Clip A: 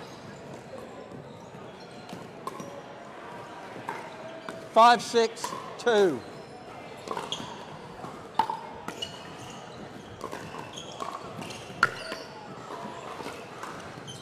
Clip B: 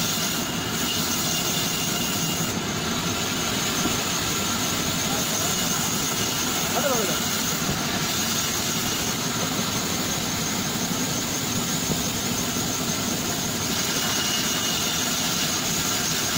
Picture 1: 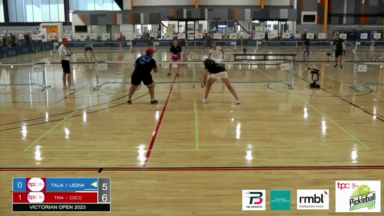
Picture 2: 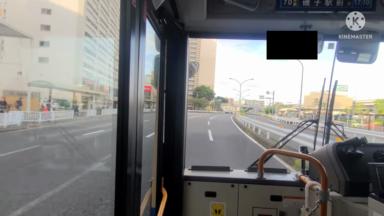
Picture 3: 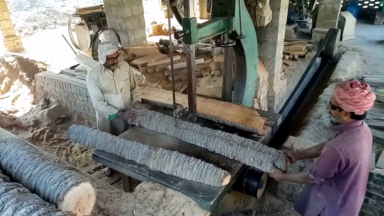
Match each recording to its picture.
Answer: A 1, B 3